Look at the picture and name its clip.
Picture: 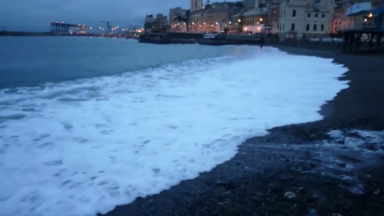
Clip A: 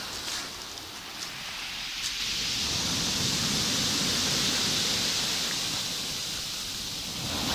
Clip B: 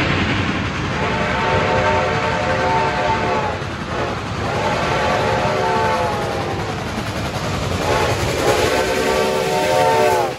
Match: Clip A